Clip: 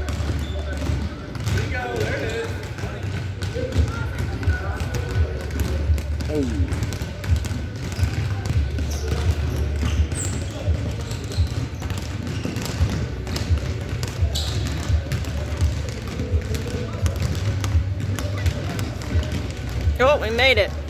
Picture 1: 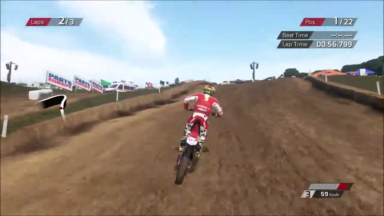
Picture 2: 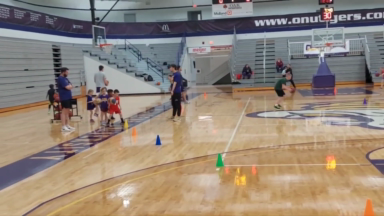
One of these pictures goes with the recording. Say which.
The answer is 2